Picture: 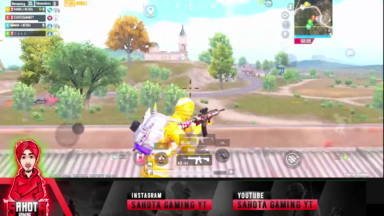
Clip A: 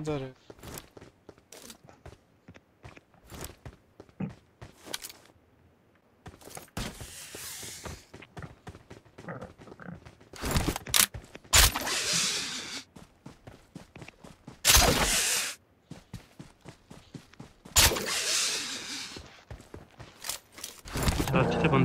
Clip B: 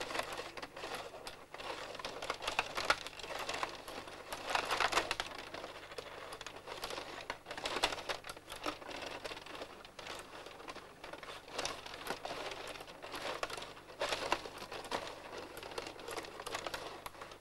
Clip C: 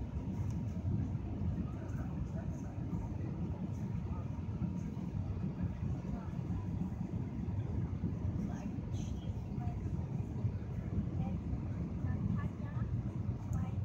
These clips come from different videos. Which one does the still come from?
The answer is A